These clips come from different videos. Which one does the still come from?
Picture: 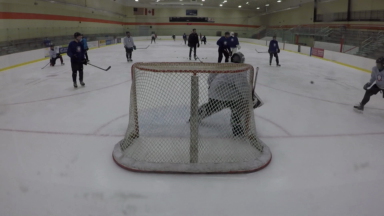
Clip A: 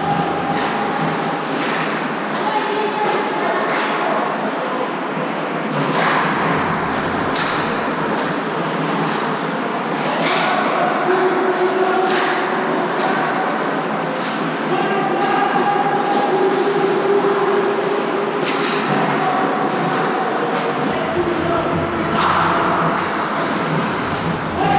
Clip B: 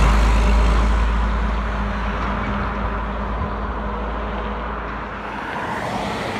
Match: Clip A